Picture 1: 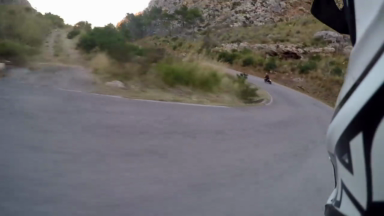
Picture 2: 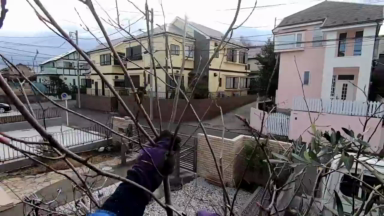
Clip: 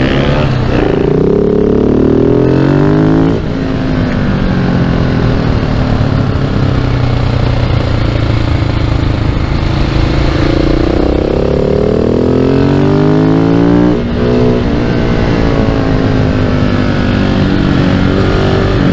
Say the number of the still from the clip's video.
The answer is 1